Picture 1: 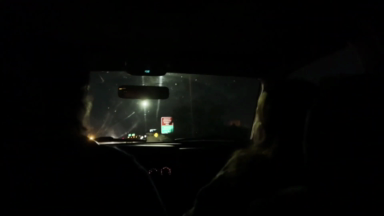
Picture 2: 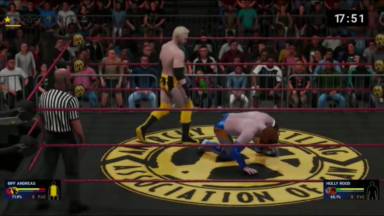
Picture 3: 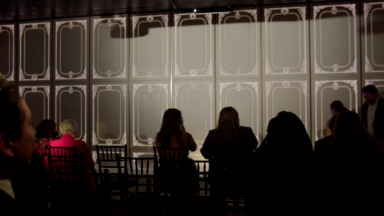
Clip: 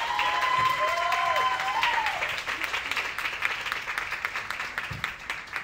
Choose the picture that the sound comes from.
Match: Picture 3